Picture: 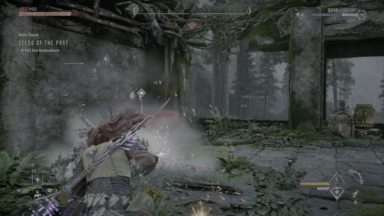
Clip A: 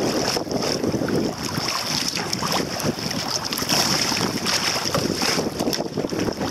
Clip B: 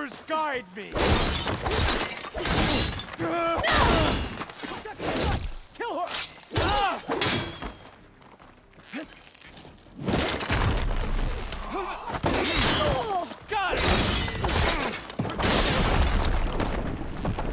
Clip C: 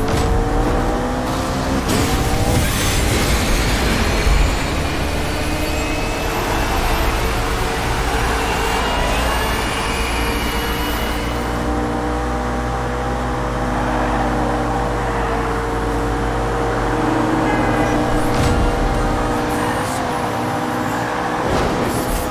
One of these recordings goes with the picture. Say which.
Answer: B